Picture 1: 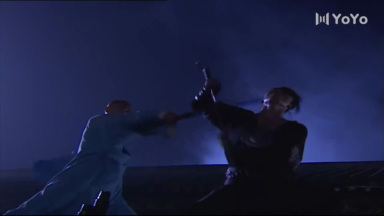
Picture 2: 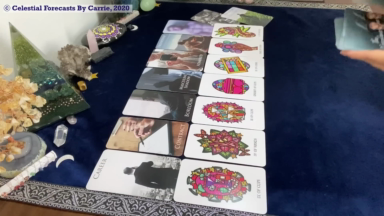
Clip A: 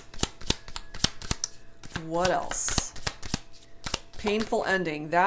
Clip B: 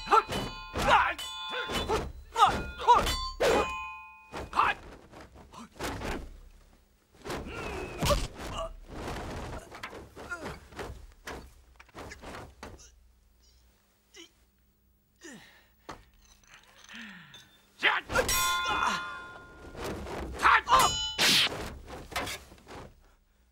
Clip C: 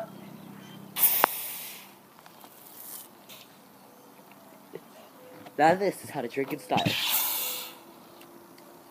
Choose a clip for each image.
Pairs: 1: B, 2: A